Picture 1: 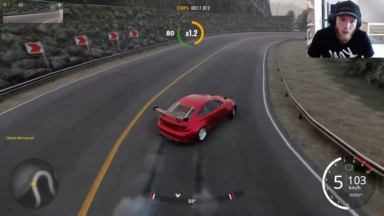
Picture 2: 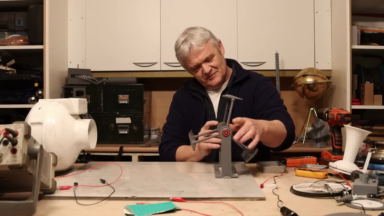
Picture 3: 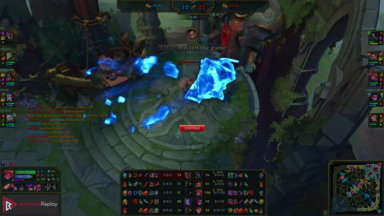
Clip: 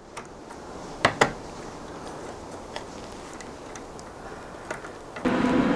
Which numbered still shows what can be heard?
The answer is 2